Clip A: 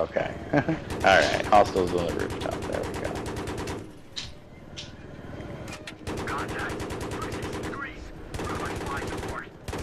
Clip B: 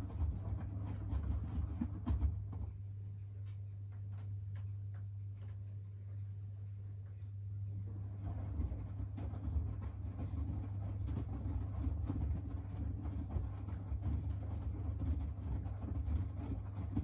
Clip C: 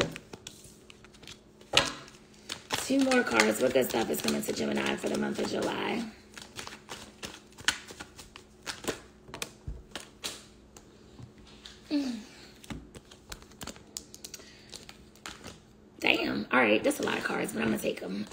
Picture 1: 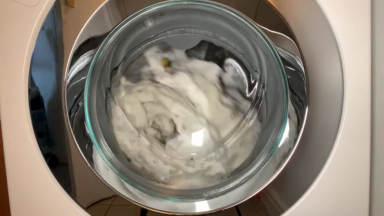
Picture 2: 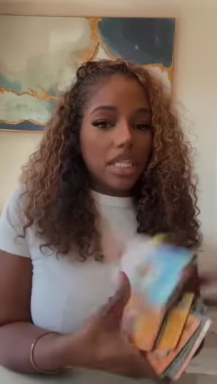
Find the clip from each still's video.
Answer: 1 B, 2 C